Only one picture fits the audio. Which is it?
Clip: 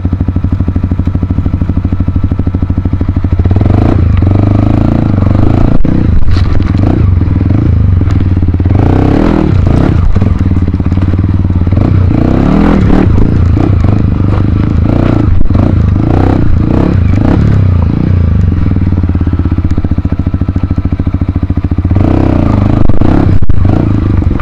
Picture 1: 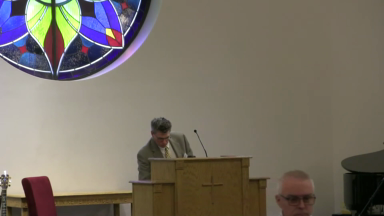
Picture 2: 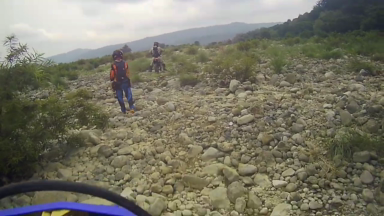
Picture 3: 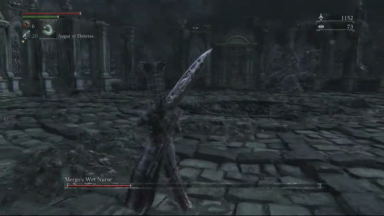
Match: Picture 2